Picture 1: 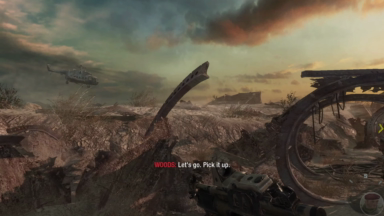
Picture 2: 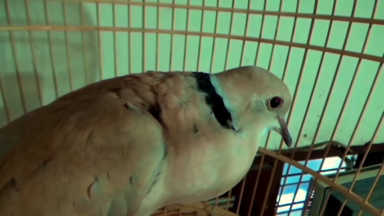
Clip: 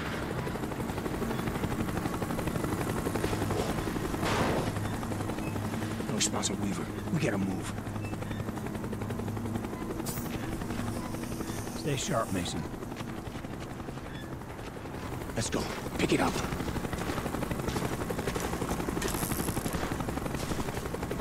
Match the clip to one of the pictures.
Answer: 1